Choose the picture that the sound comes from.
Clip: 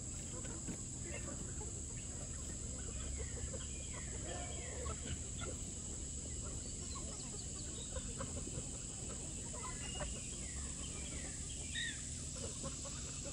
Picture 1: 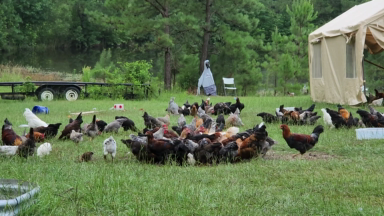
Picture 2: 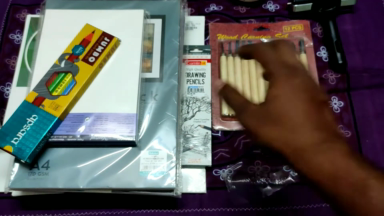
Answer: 1